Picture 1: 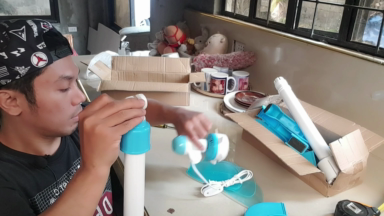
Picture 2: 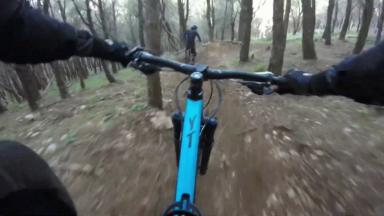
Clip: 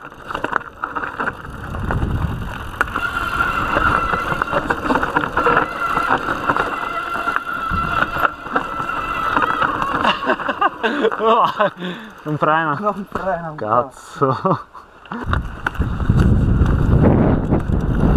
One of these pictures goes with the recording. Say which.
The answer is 2